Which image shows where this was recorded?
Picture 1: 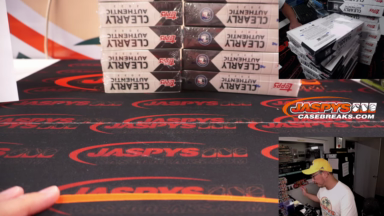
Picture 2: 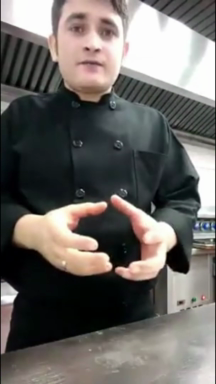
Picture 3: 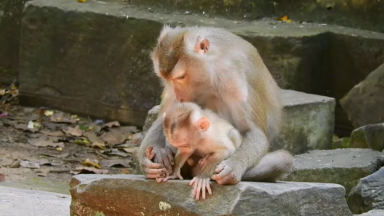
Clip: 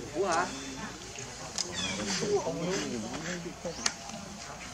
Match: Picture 3